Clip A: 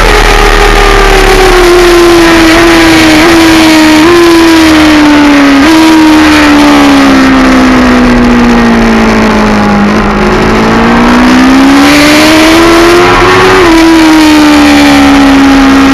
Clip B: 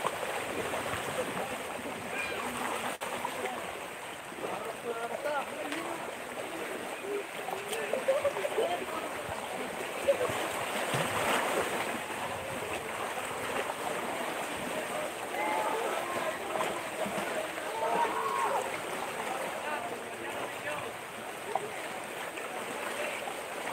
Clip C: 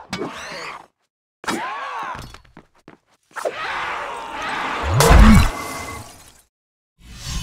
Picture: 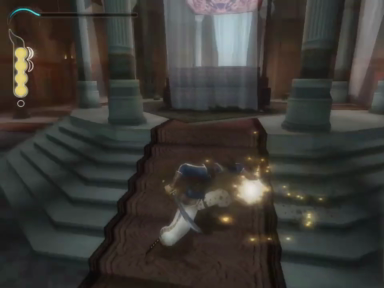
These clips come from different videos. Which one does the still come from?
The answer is C